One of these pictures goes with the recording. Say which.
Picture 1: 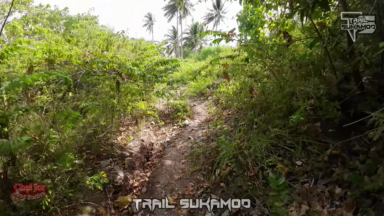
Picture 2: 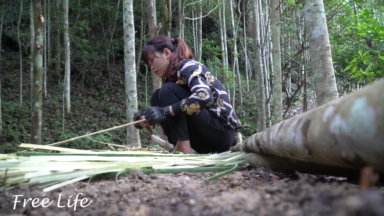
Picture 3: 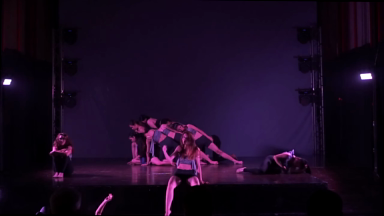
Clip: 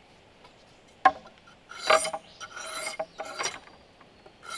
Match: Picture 2